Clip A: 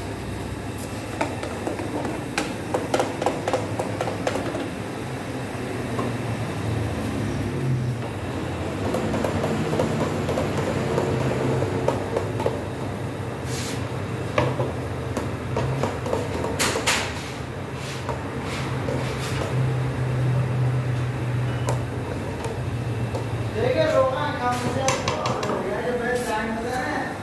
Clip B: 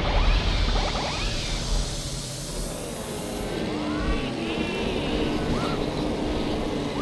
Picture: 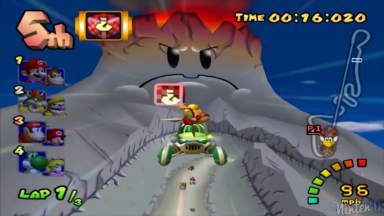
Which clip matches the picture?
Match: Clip B